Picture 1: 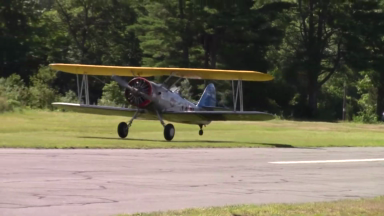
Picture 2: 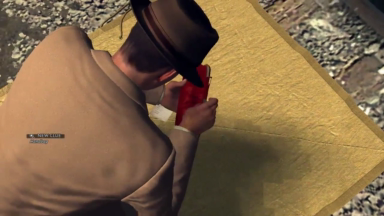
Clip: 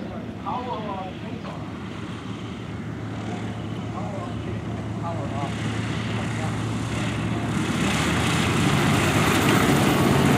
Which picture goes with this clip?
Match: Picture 1